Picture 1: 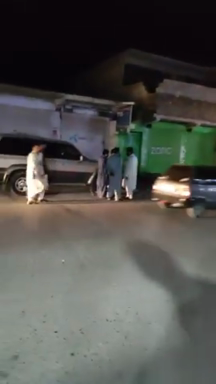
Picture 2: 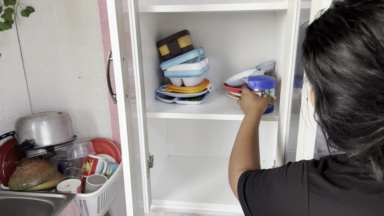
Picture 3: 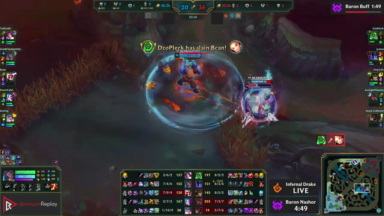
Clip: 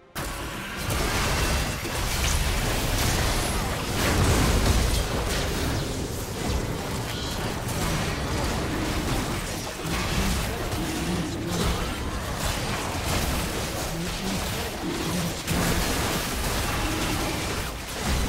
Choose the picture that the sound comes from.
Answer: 3